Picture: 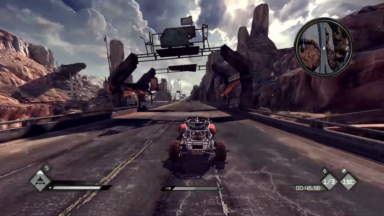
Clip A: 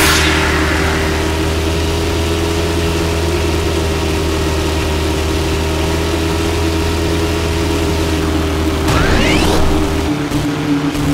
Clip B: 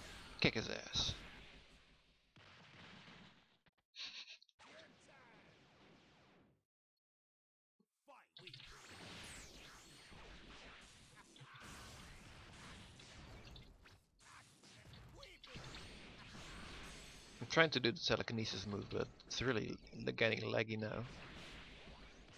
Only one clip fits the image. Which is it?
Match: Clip A